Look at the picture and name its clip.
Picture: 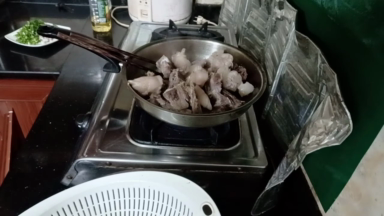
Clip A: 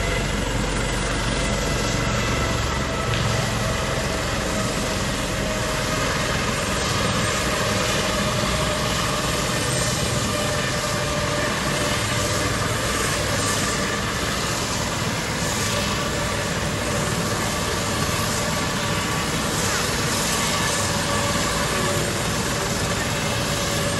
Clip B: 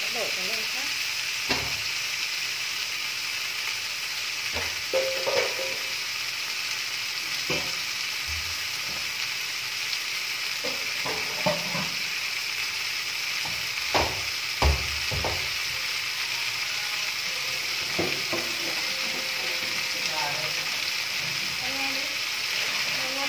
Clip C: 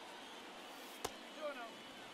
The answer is B